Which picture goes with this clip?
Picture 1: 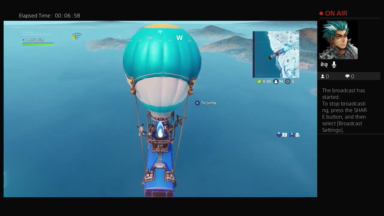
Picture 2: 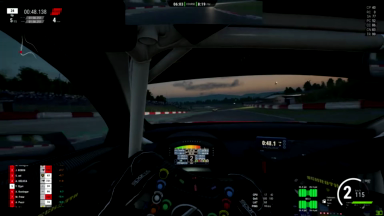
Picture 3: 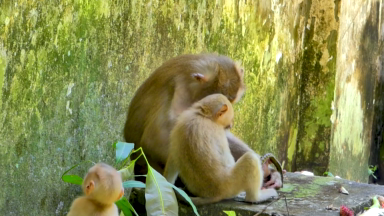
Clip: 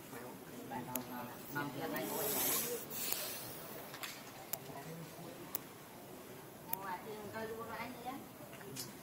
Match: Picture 3